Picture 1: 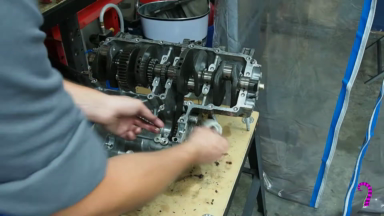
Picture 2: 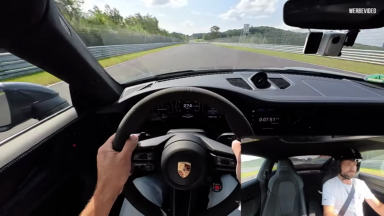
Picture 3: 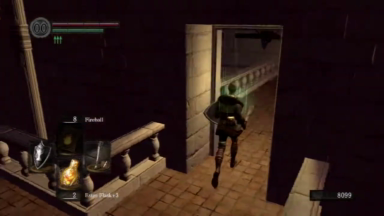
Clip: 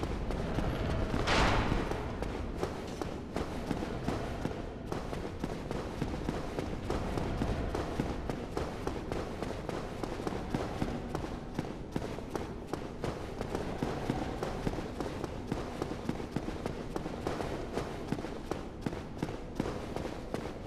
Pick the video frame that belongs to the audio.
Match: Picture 3